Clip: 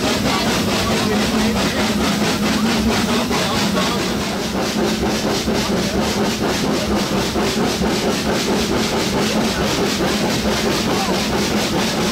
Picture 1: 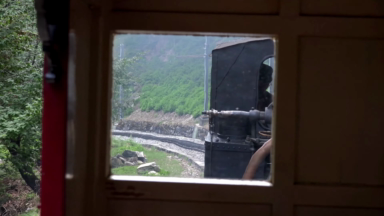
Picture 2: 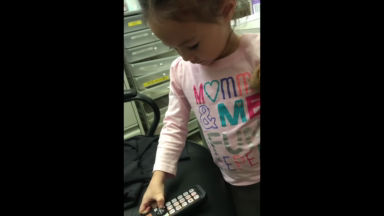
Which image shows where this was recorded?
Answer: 1